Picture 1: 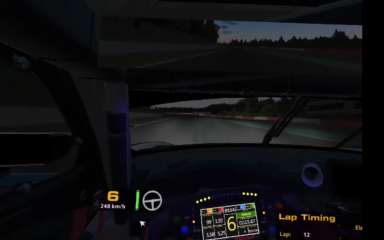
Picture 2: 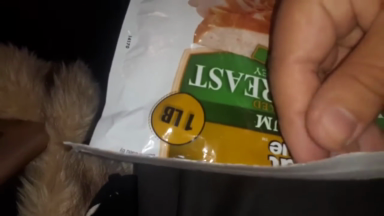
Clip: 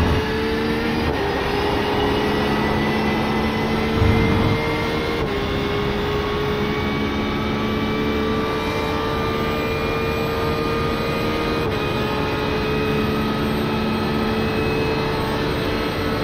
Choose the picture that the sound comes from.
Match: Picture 1